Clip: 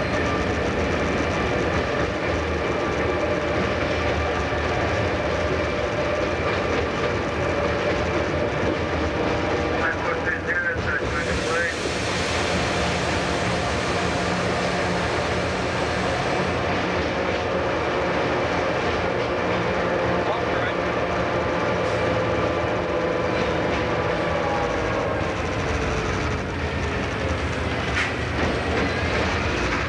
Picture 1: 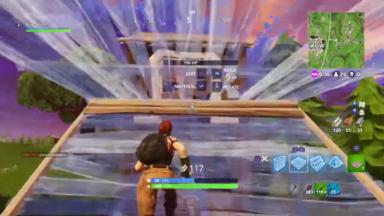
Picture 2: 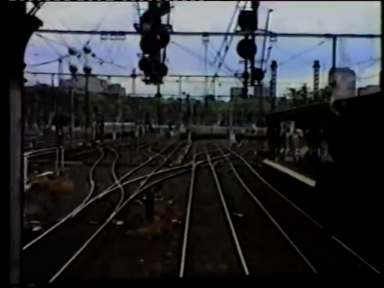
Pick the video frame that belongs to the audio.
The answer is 2